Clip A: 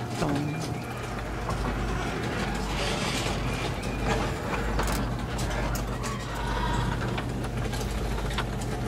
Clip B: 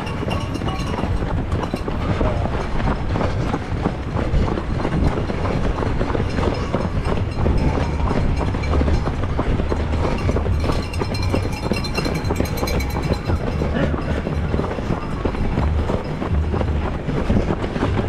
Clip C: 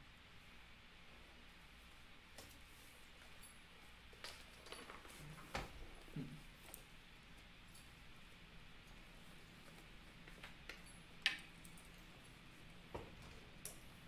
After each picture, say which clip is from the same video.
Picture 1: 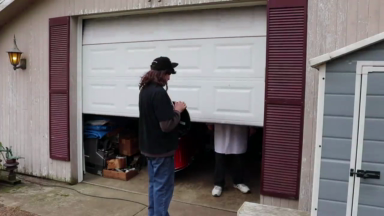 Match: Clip A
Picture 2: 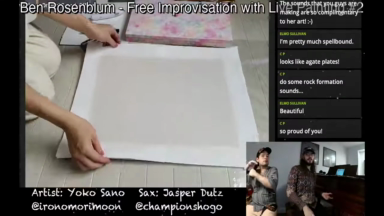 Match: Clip C